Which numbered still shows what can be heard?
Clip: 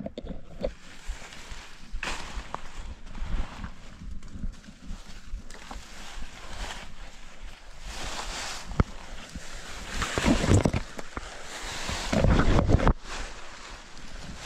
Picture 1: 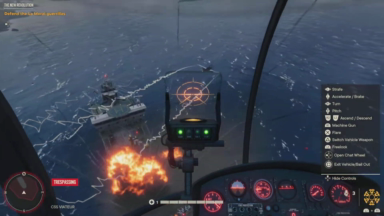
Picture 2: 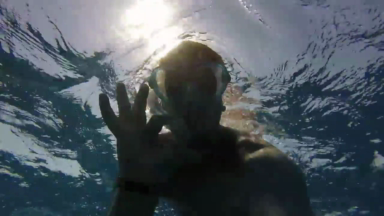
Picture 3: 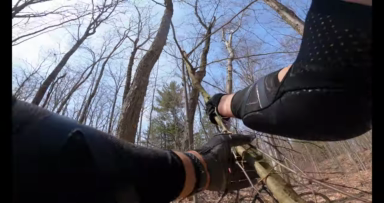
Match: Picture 3